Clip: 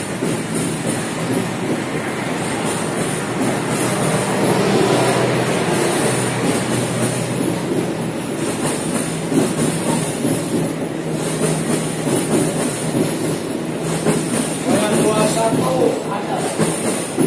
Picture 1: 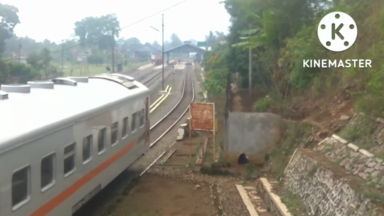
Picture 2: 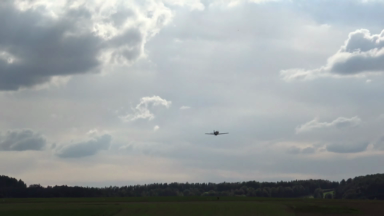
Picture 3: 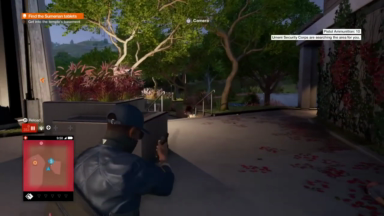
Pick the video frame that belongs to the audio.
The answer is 1